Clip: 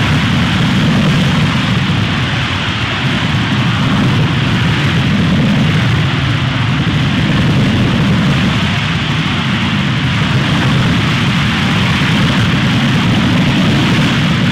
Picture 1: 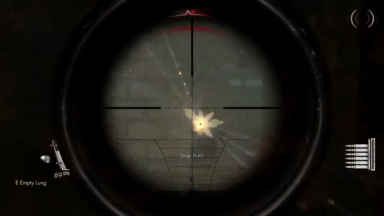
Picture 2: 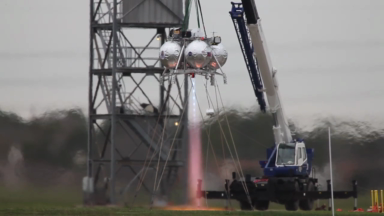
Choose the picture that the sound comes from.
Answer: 2